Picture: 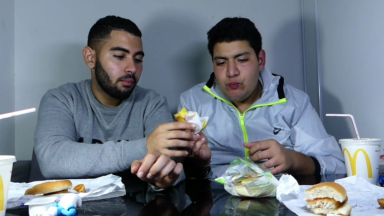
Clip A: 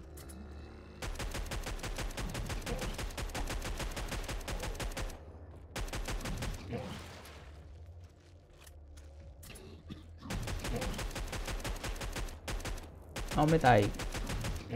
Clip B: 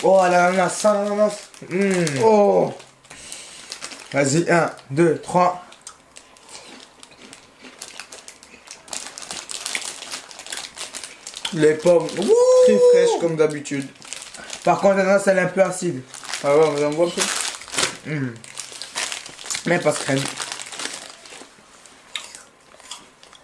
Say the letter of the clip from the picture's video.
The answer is B